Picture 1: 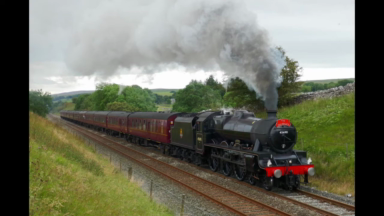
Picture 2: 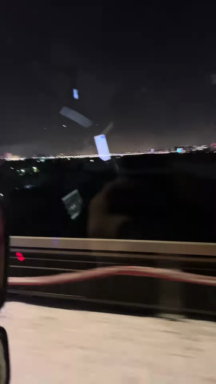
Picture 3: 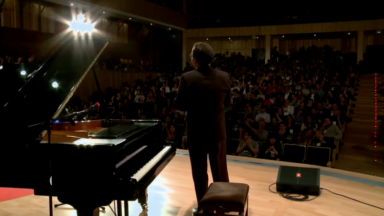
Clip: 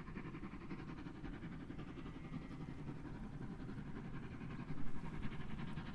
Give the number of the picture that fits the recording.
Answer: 1